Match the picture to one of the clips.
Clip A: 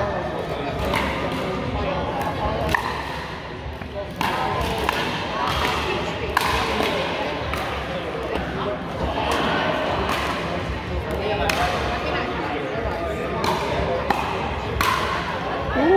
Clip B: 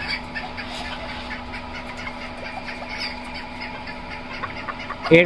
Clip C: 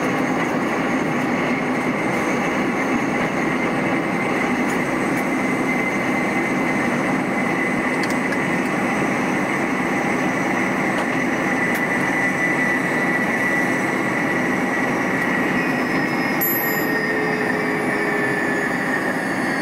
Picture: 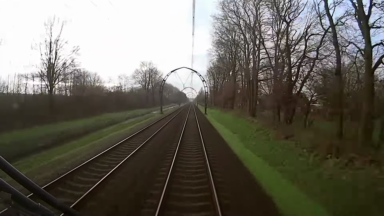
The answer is C